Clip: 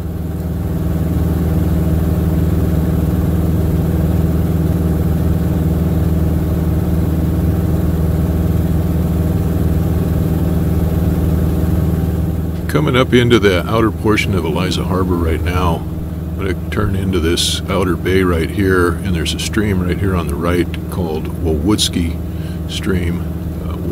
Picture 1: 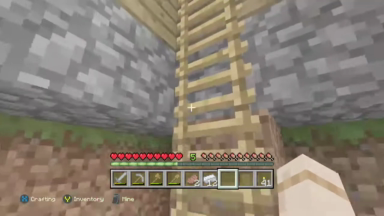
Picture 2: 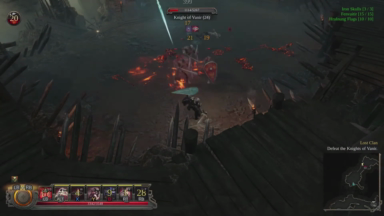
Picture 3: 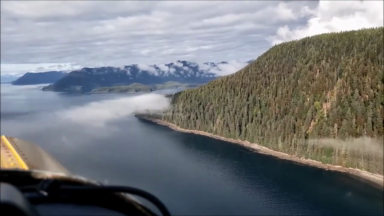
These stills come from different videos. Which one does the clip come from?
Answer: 3